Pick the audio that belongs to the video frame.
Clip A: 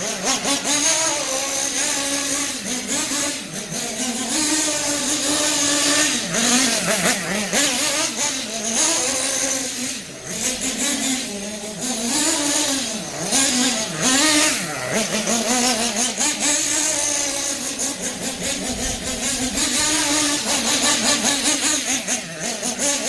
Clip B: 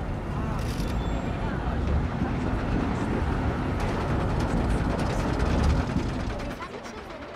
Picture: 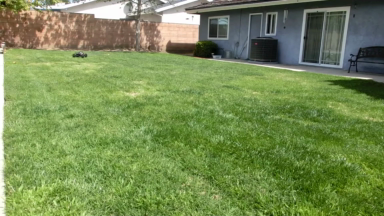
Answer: A